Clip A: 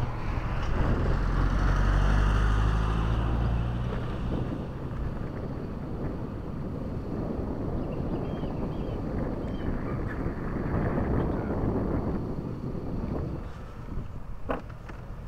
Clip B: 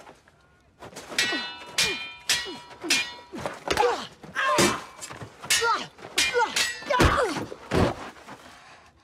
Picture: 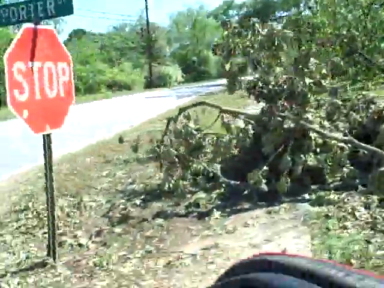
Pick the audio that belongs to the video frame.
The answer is A